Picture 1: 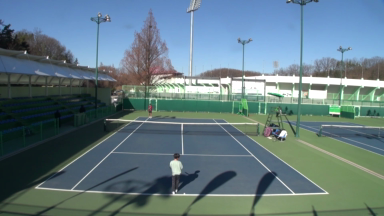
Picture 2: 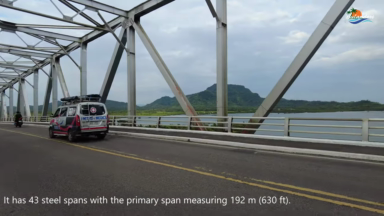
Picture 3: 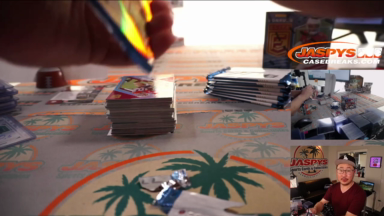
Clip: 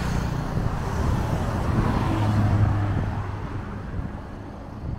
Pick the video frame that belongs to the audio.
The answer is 2